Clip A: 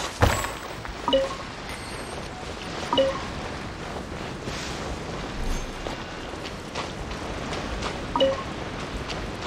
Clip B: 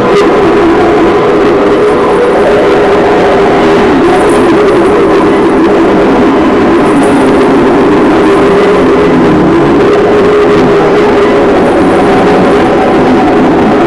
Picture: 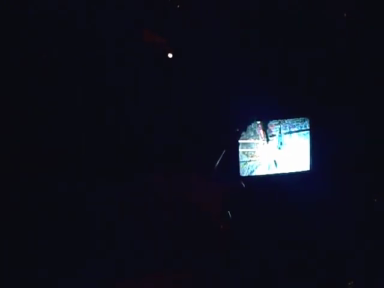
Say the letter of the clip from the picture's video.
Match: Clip B